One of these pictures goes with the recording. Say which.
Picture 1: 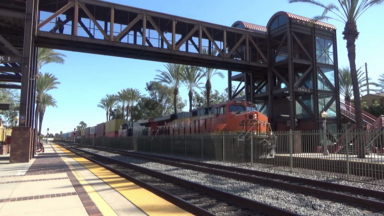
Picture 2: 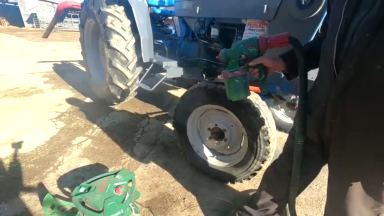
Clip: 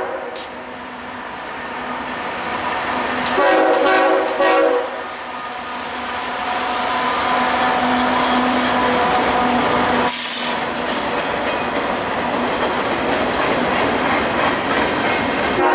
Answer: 1